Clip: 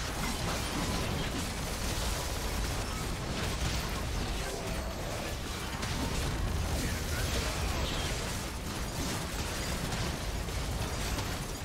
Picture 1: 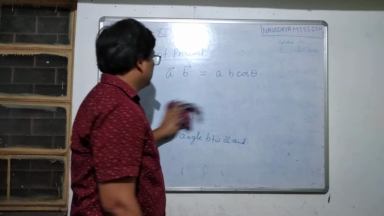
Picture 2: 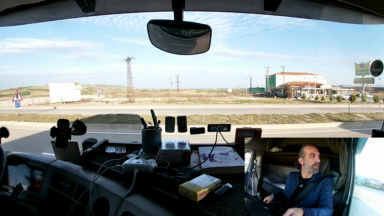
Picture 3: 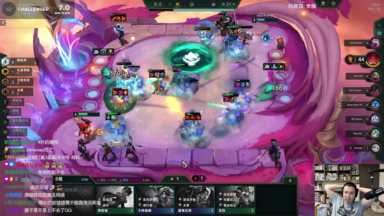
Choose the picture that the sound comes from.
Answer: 3